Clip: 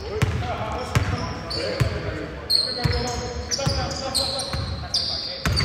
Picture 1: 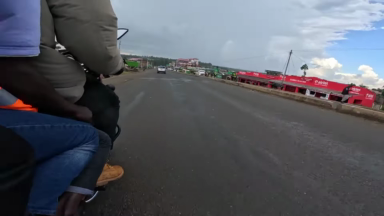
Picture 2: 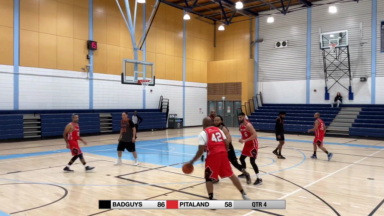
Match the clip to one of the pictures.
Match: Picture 2